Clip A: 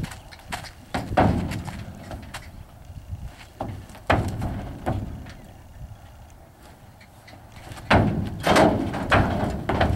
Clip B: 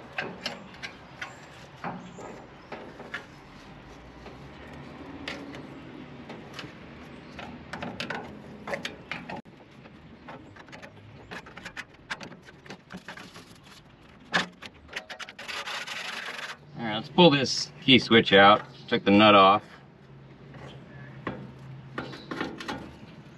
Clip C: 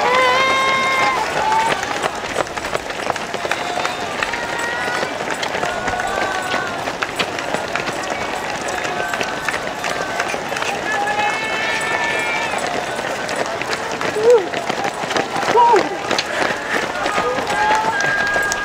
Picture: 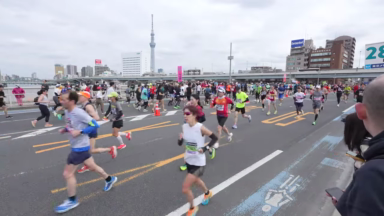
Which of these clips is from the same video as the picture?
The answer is C